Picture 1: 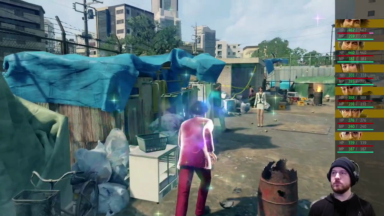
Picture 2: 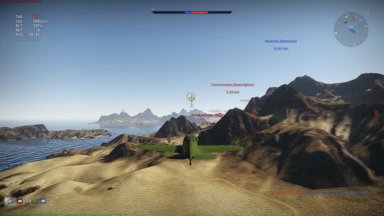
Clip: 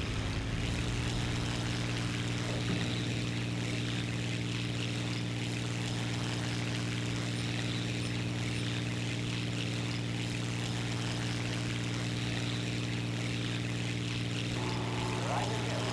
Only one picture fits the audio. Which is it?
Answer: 2